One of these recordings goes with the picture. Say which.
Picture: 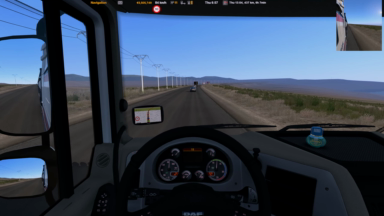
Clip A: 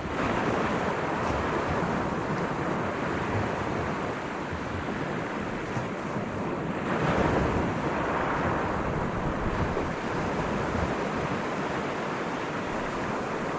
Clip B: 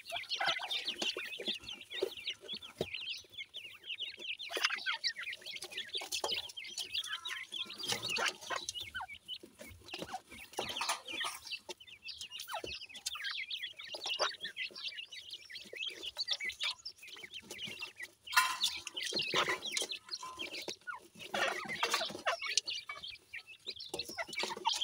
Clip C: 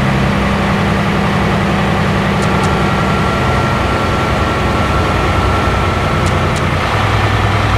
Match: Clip C